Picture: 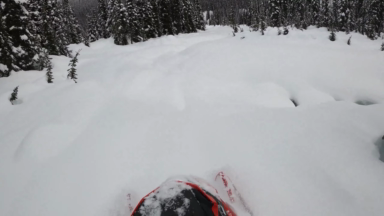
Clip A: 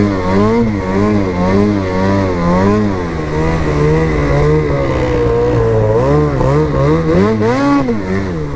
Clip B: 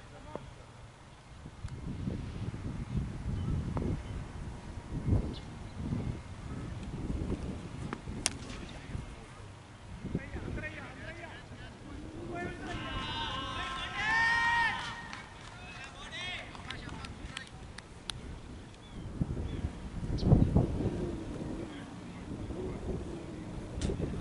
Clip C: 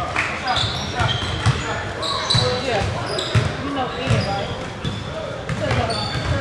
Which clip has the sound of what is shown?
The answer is A